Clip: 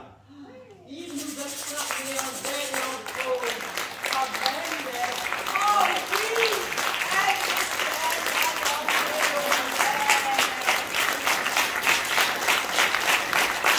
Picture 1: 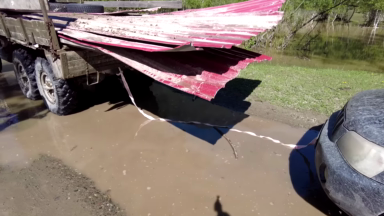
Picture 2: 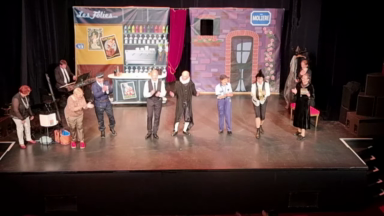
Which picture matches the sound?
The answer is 2